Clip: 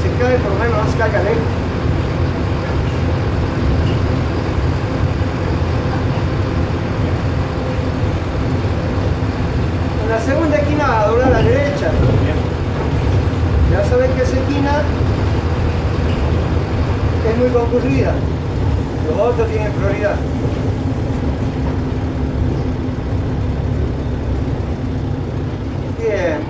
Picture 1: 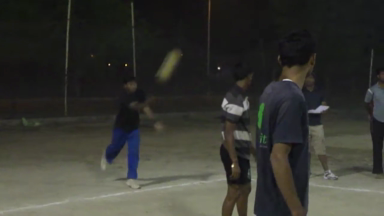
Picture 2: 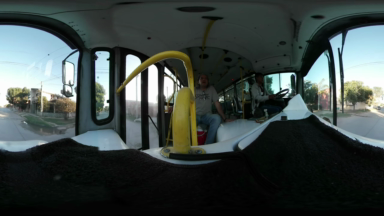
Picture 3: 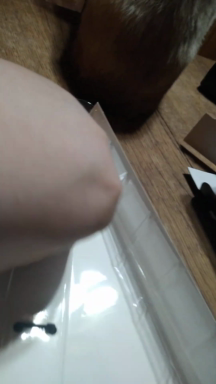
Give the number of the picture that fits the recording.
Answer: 2